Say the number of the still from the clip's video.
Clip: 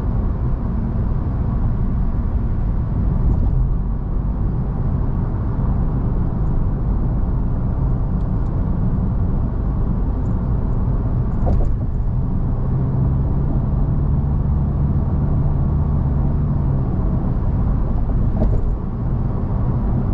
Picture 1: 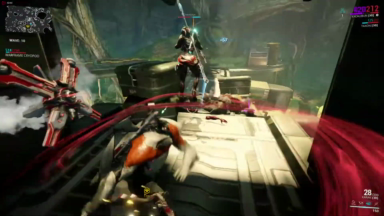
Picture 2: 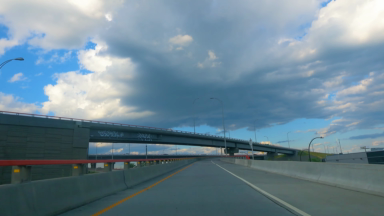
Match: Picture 2